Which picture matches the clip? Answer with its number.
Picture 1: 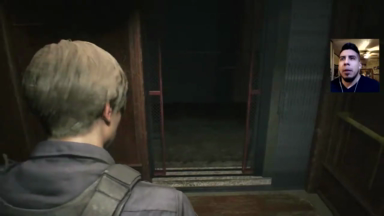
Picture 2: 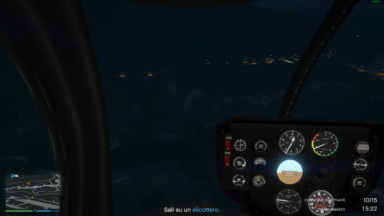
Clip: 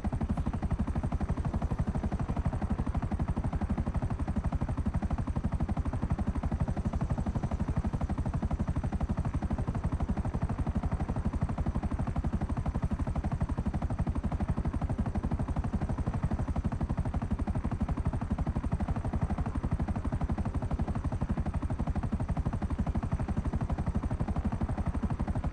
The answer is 2